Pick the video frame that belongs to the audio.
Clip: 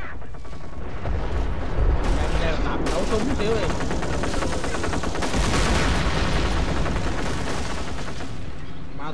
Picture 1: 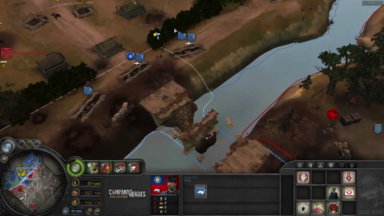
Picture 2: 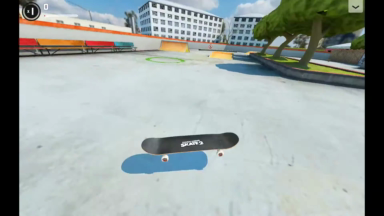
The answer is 1